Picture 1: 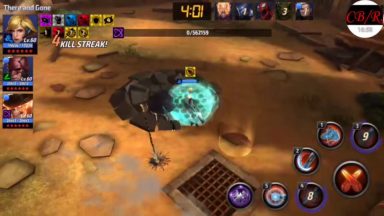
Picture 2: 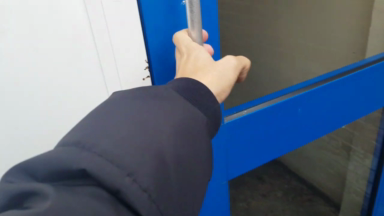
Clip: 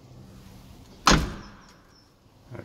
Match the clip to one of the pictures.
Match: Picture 2